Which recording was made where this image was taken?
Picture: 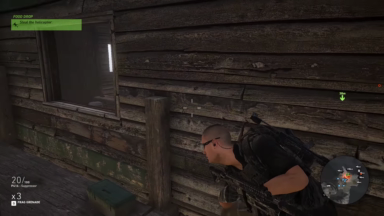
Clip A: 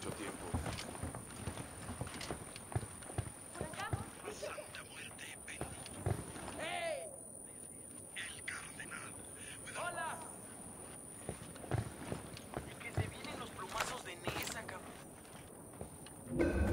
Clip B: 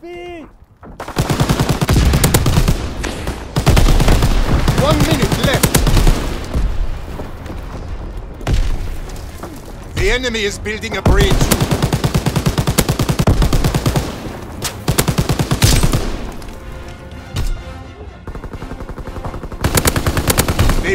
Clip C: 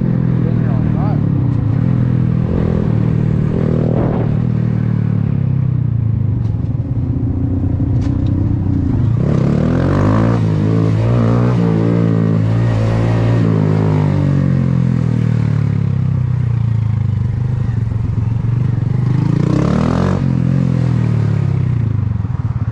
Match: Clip A